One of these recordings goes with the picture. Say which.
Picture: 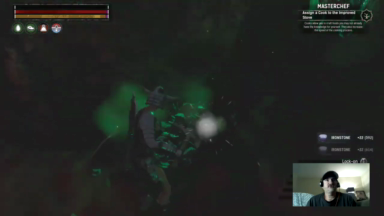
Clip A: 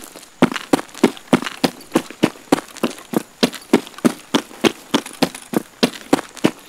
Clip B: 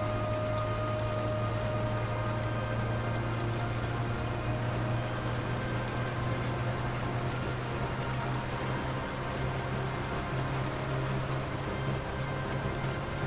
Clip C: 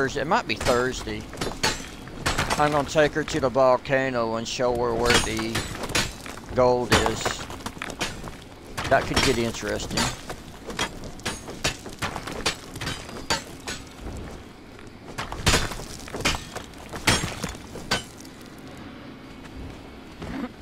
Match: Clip C